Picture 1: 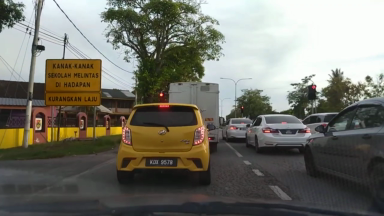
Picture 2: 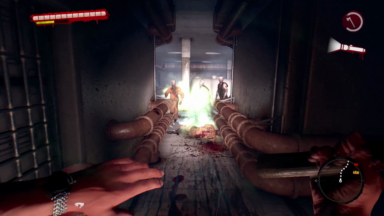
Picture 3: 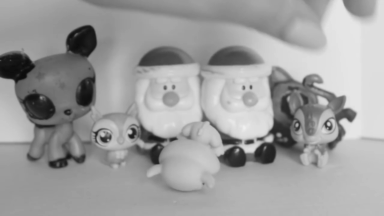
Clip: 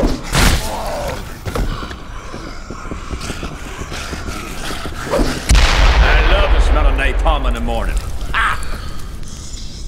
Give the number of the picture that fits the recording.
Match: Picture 2